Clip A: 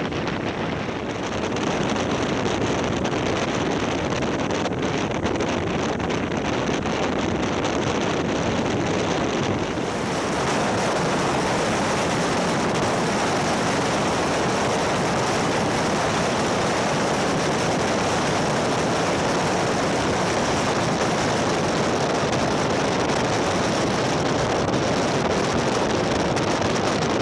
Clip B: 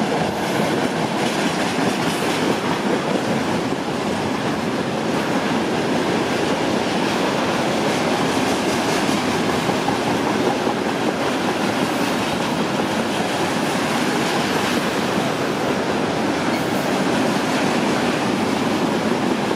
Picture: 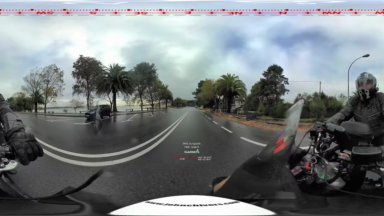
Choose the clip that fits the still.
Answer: A